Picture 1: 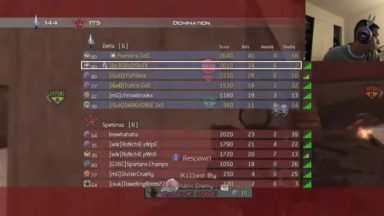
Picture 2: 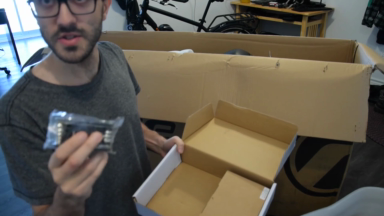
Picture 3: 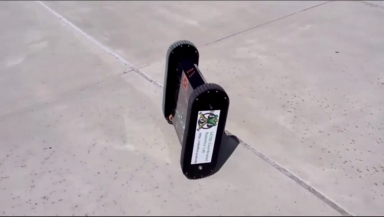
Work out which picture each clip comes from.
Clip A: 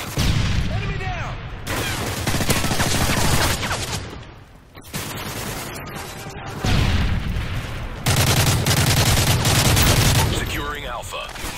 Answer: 1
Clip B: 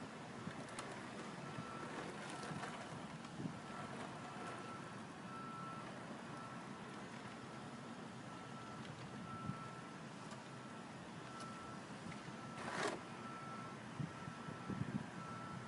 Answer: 3